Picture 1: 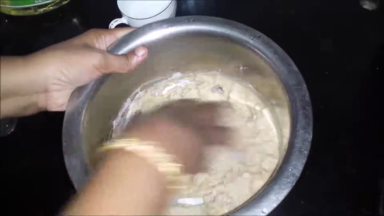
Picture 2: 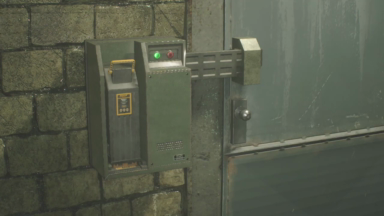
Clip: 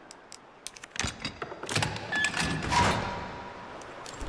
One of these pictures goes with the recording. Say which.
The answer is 2